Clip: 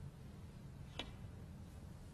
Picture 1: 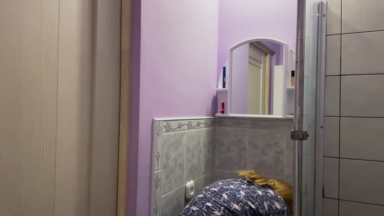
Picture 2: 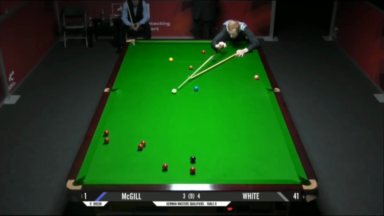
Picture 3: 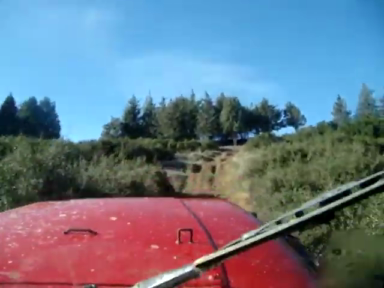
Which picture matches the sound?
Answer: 2